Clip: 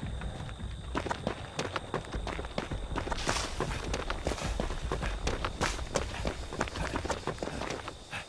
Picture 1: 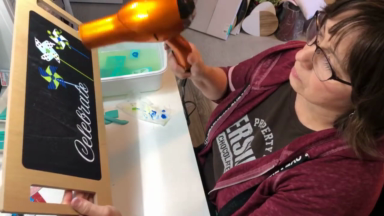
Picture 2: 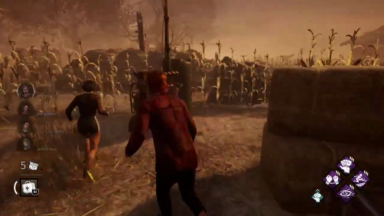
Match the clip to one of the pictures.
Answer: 2